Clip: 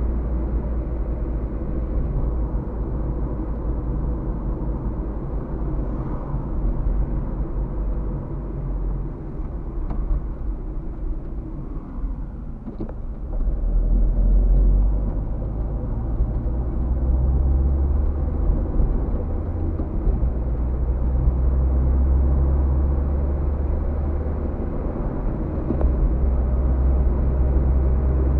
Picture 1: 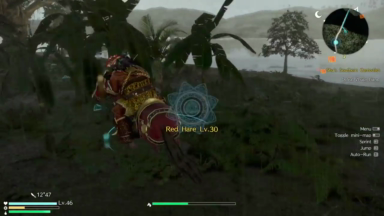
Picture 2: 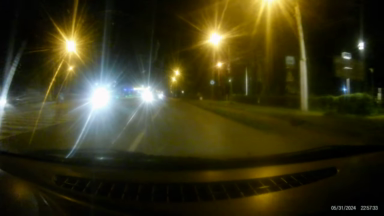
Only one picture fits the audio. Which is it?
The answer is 2